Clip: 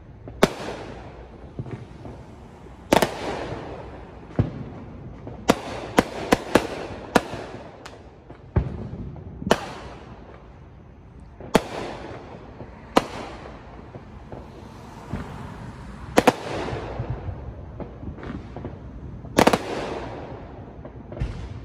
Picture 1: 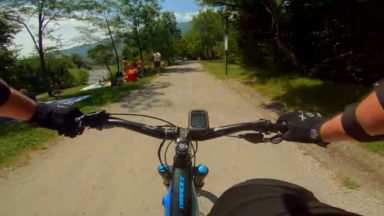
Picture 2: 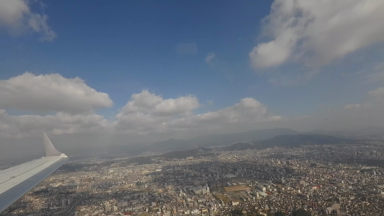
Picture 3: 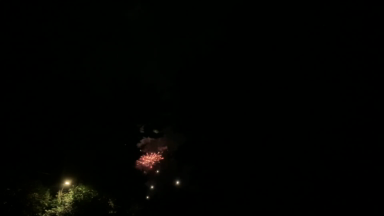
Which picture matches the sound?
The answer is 3